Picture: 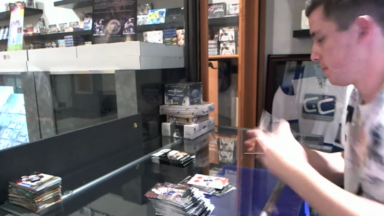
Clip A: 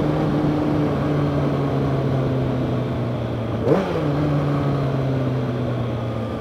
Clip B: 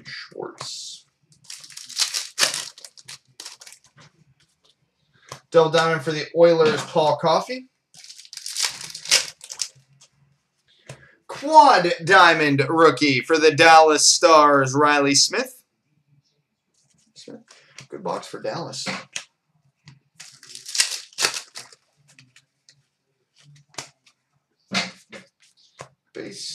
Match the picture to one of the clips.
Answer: B